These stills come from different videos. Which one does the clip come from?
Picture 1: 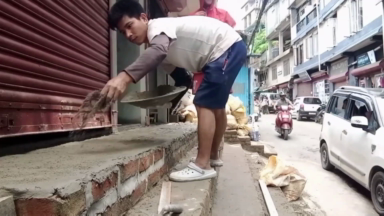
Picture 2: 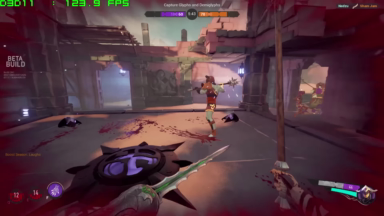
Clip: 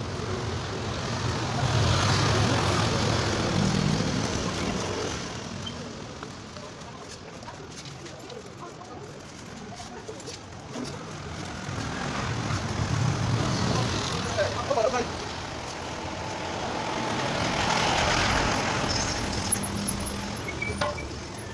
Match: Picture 1